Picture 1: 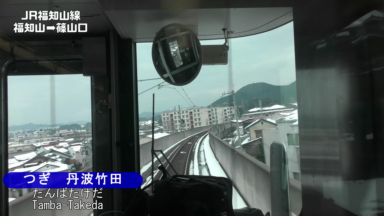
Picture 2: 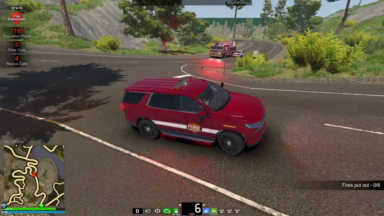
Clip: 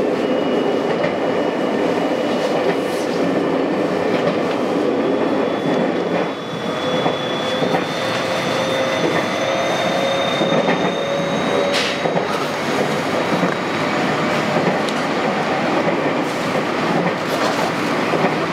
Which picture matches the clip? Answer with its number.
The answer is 1